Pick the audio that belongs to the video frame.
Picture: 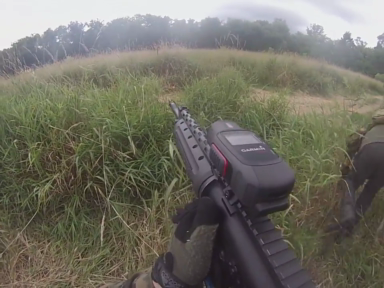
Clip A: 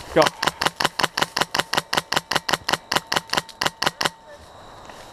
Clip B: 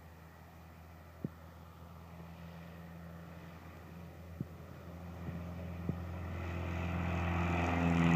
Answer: A